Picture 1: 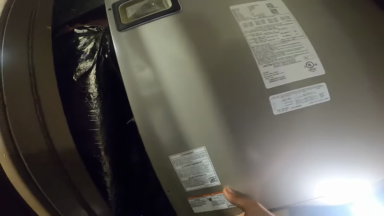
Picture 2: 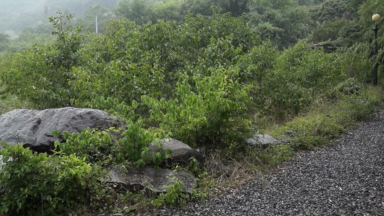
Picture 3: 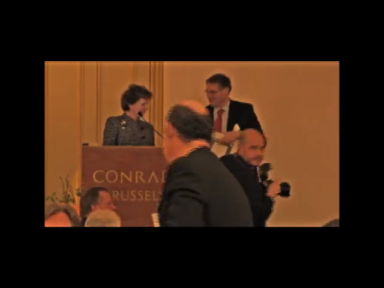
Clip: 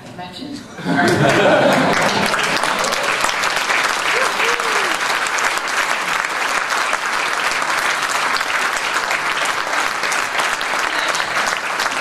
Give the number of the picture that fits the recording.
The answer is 3